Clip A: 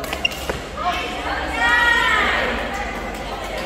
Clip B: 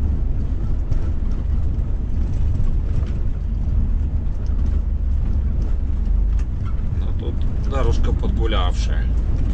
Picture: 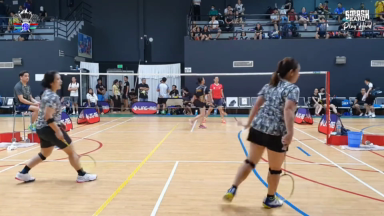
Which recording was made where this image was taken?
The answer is A